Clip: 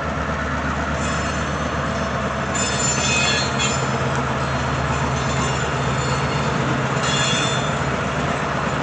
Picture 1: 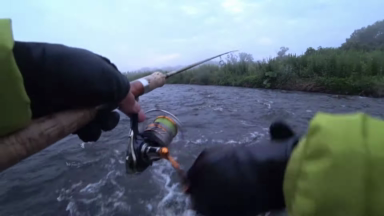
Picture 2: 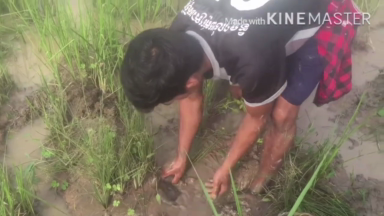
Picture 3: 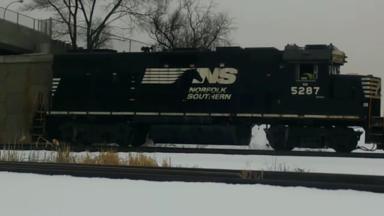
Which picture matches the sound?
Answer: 3